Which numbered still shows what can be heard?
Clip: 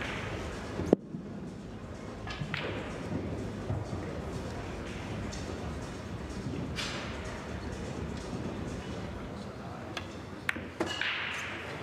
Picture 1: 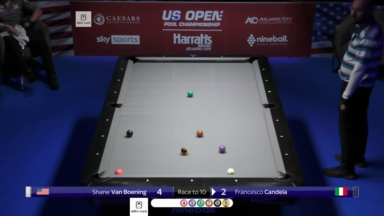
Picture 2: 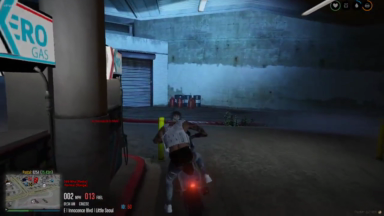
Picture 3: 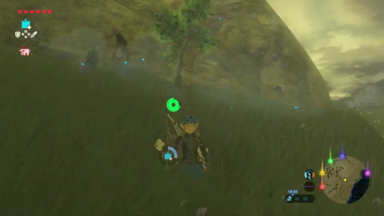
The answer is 1